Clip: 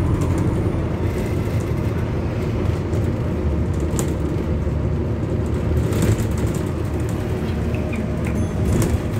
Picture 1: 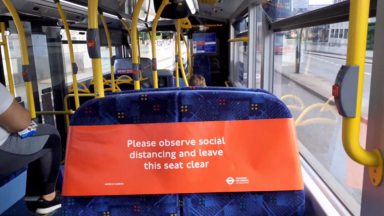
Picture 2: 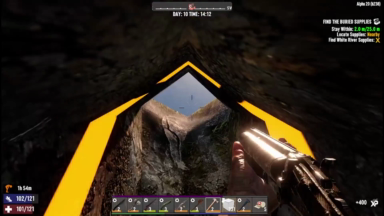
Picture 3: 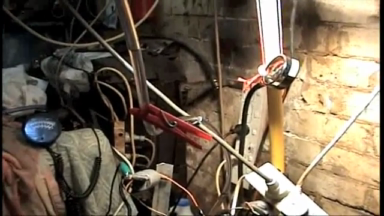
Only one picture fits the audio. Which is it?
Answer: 1